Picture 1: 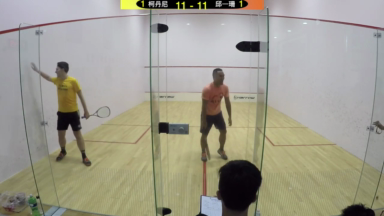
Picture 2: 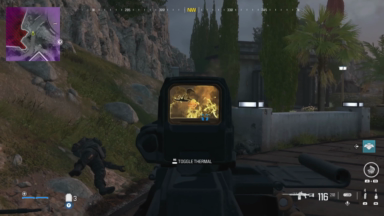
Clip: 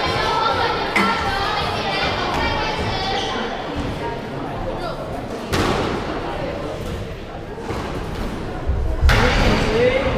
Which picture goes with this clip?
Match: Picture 1